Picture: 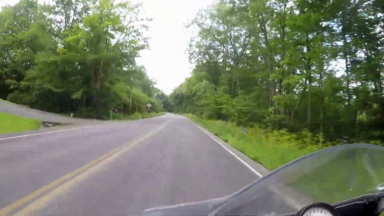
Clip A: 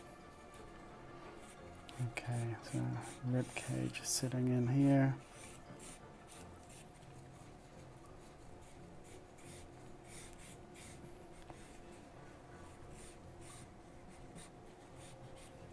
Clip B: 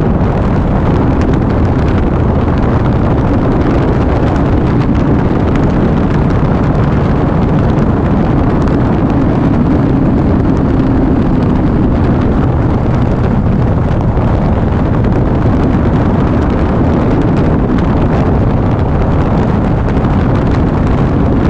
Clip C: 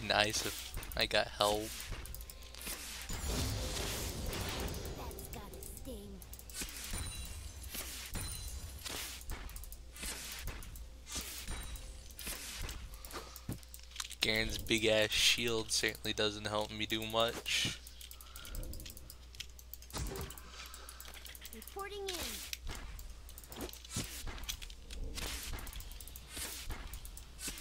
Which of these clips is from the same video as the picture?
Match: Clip B